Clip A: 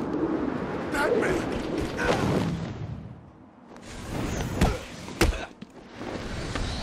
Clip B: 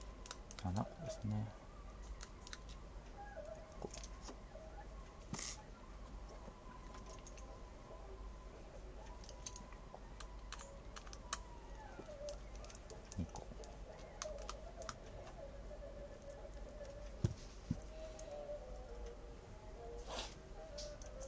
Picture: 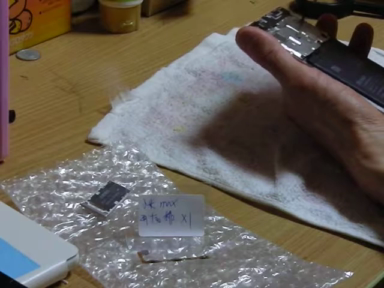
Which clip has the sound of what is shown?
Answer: B